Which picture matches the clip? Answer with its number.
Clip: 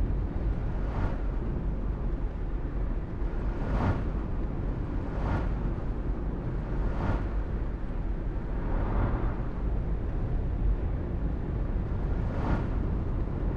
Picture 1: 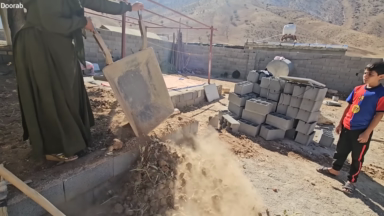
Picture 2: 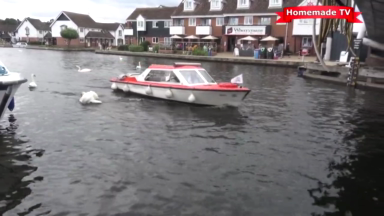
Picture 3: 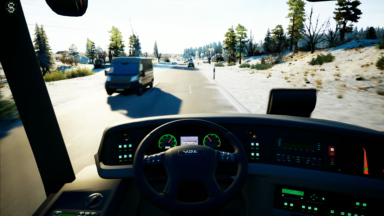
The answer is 3